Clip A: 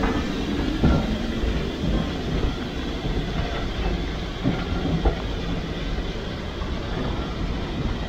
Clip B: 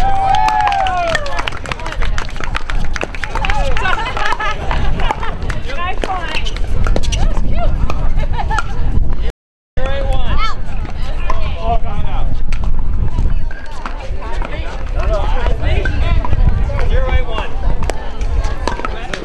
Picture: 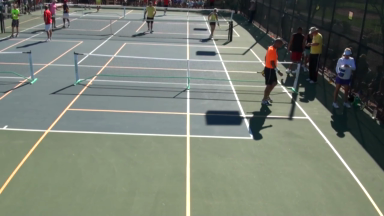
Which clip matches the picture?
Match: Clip B